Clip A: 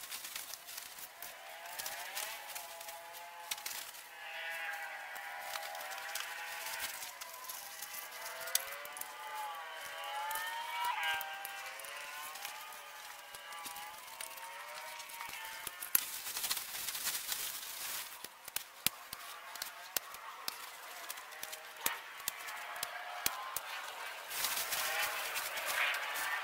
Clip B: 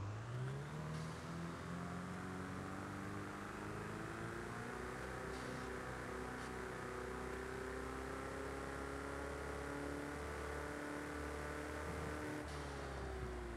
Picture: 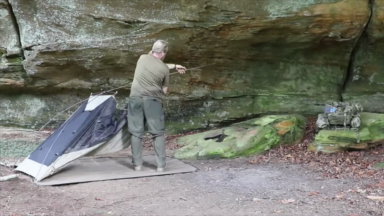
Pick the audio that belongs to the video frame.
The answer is A